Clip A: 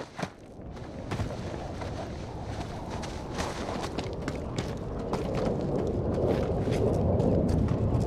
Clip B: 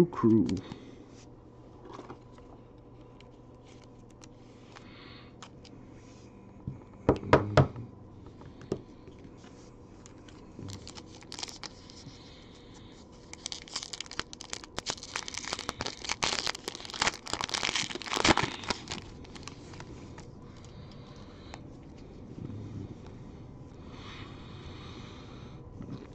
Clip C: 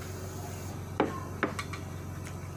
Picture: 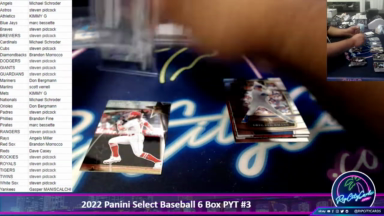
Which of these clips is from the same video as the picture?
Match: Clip B